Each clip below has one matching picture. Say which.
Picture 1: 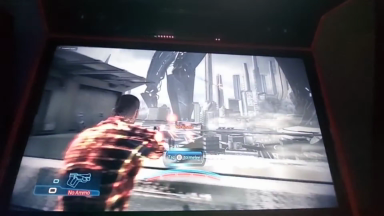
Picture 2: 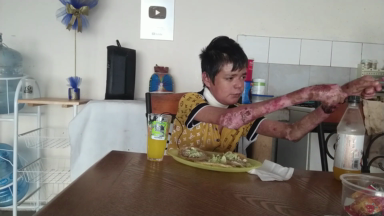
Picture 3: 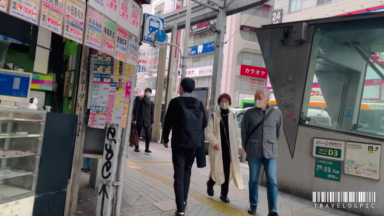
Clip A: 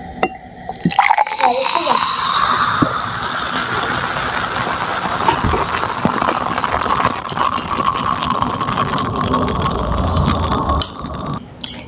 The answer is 2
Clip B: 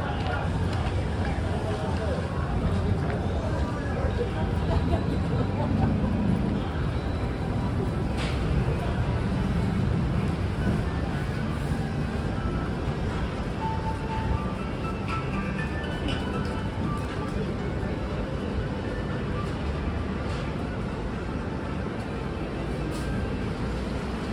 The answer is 3